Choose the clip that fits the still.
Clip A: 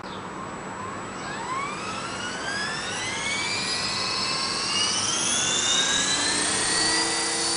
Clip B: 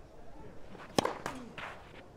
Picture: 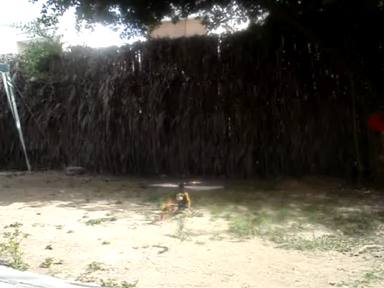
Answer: A